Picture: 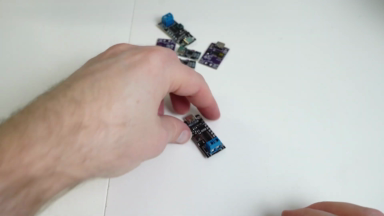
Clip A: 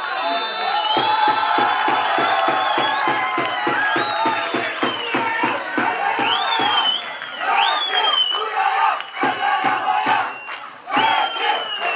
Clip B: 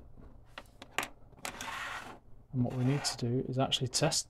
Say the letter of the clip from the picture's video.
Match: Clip B